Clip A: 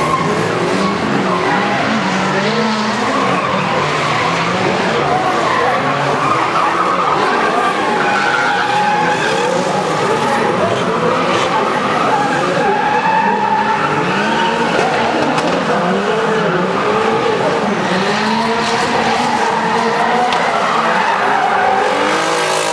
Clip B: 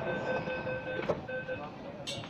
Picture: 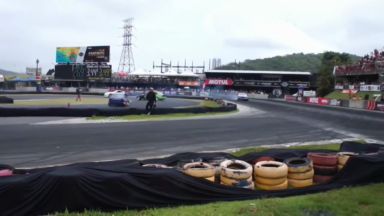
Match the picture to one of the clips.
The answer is A